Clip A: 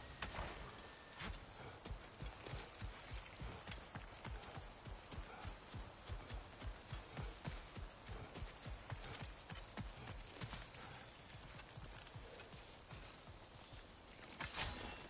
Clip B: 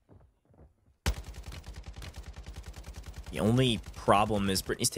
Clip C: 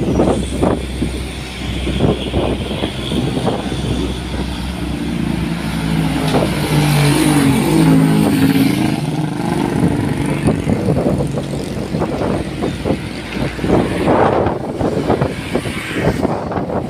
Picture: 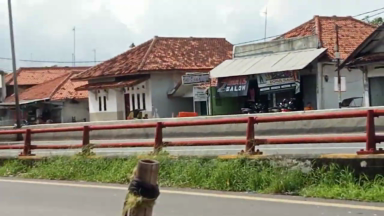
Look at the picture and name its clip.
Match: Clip C